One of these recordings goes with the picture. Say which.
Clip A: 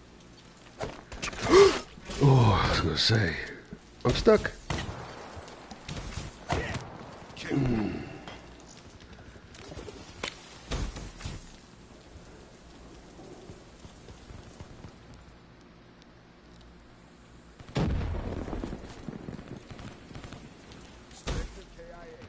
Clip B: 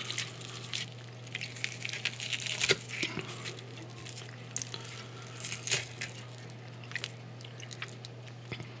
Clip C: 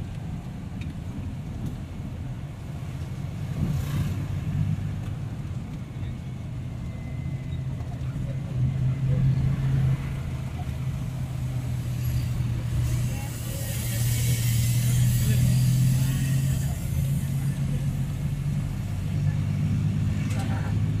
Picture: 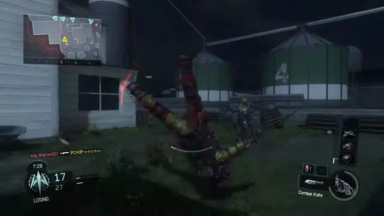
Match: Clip A